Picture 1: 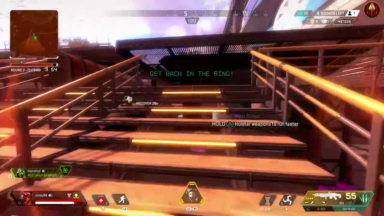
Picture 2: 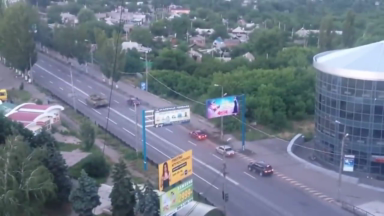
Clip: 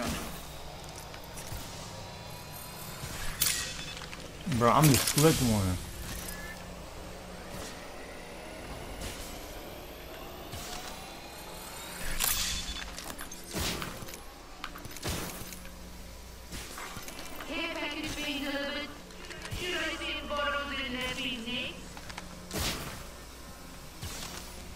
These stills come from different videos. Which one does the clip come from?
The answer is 1